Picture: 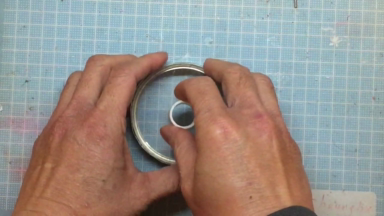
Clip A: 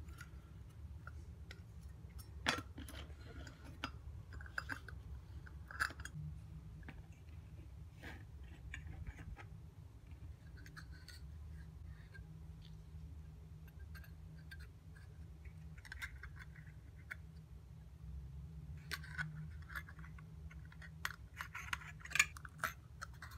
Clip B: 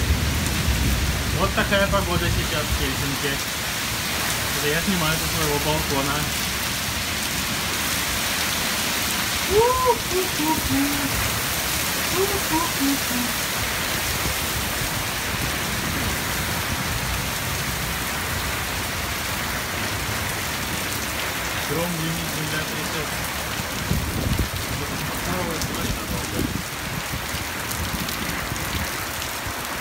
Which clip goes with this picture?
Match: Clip A